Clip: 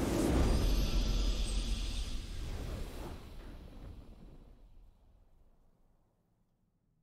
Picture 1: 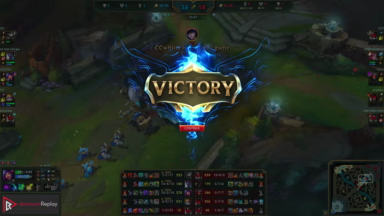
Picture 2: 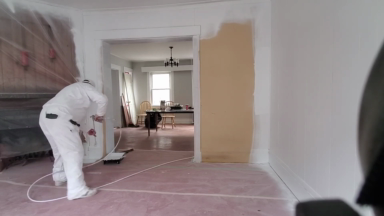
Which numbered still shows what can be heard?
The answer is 1